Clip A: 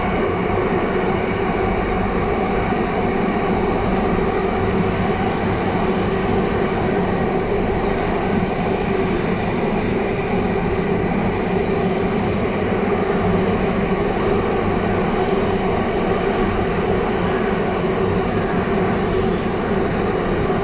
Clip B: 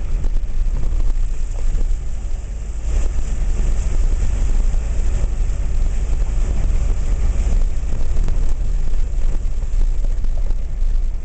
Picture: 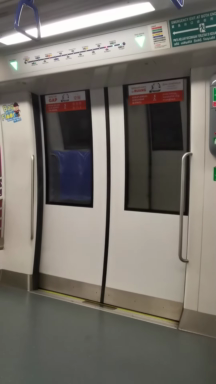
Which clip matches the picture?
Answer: A